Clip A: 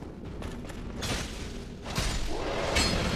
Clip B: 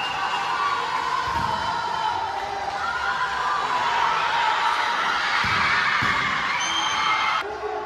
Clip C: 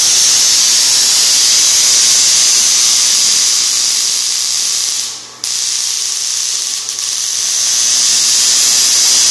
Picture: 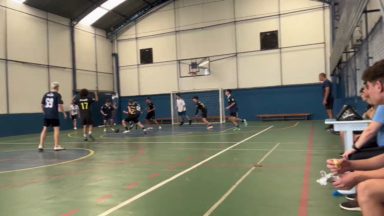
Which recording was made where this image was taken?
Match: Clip B